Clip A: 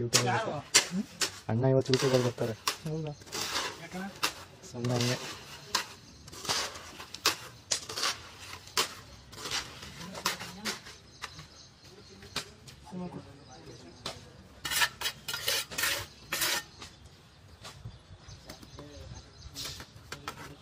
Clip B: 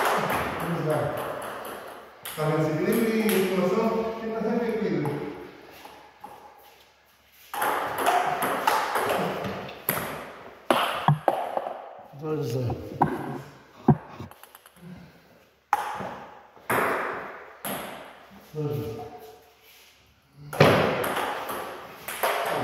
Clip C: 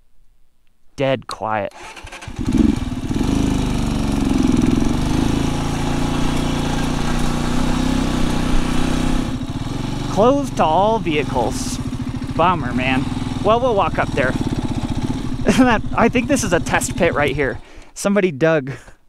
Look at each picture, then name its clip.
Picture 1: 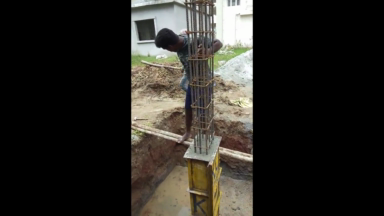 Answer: A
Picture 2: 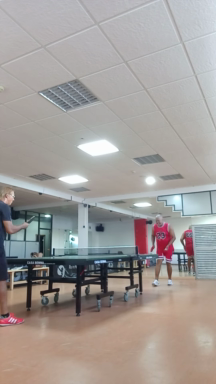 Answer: B